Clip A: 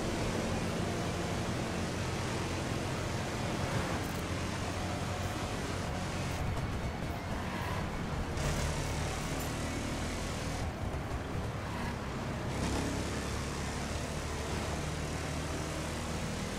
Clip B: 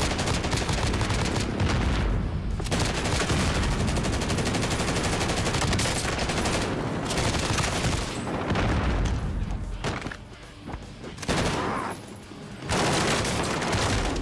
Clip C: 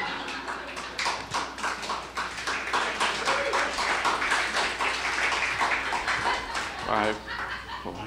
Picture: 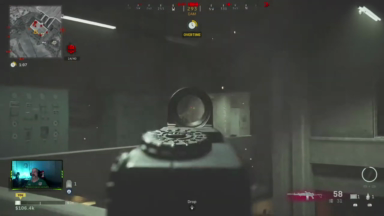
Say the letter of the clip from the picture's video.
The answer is B